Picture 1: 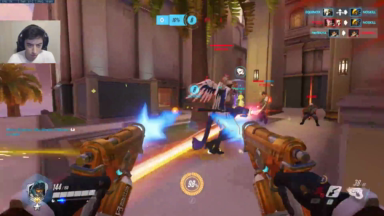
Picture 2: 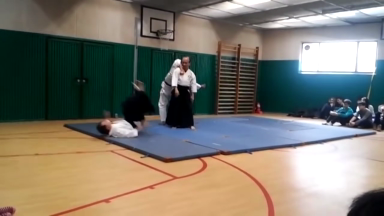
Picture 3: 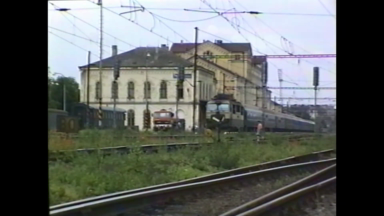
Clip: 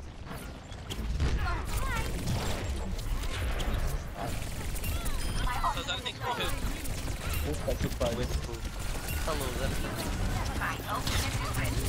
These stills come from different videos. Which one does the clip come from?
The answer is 1